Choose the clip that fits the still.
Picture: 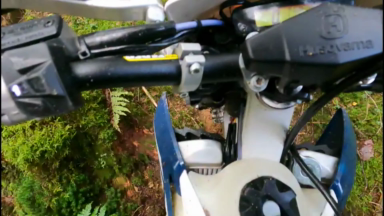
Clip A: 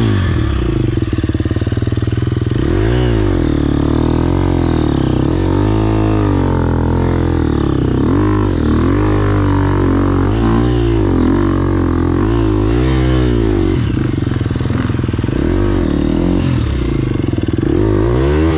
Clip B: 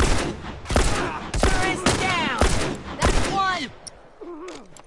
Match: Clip A